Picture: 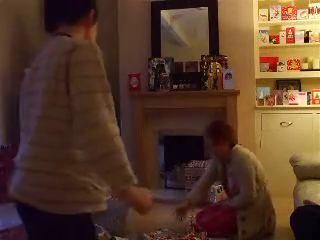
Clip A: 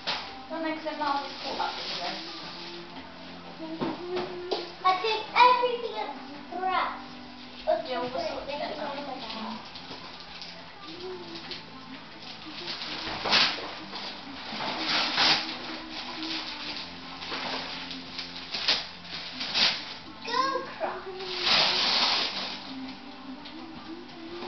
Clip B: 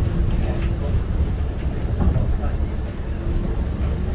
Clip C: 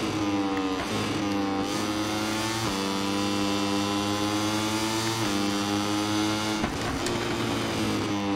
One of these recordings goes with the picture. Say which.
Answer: A